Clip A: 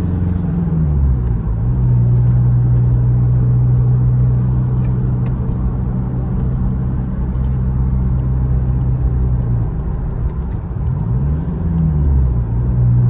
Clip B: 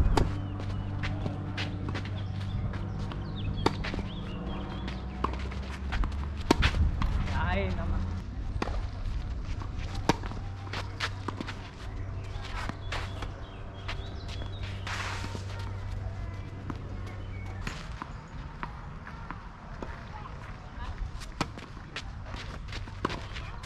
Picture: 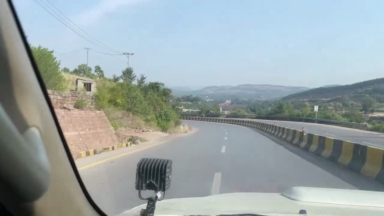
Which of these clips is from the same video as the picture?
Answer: A